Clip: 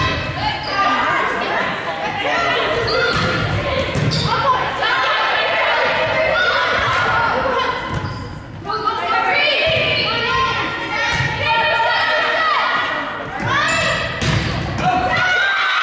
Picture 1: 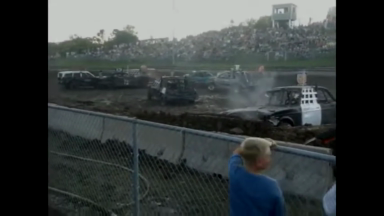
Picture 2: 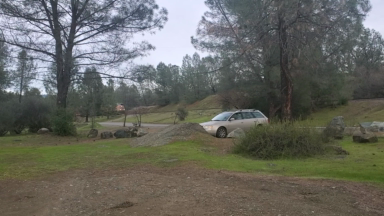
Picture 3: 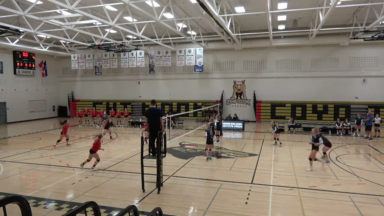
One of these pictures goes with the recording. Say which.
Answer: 3